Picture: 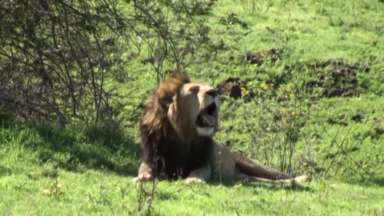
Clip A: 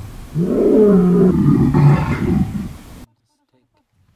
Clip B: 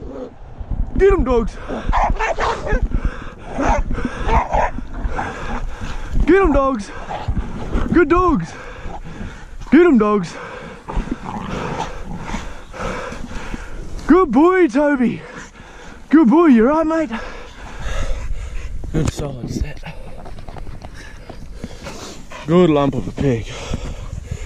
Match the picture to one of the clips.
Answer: A